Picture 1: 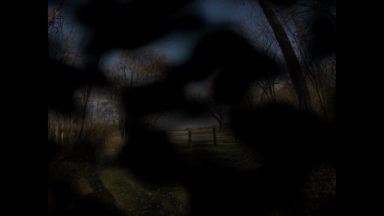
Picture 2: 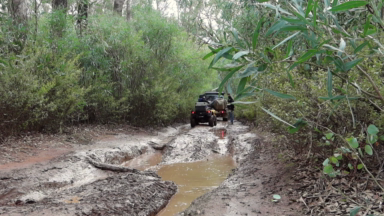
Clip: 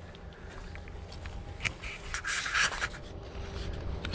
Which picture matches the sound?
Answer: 1